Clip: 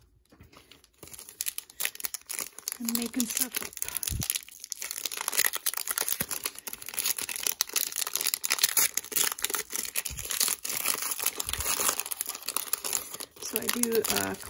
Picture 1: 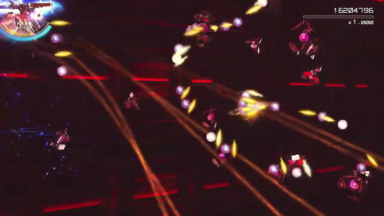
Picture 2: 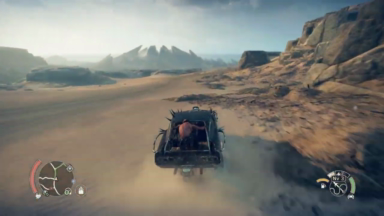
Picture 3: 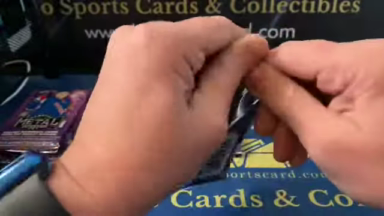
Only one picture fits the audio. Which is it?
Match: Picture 3